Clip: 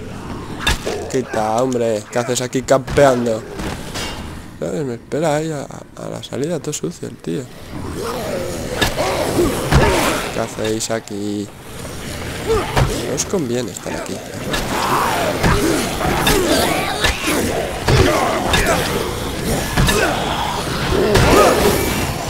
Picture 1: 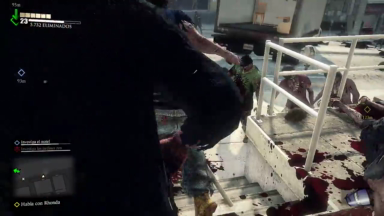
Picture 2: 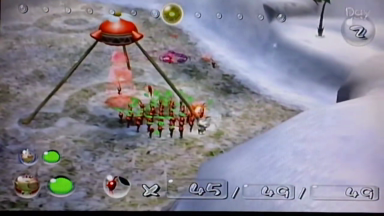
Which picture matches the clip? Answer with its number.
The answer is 1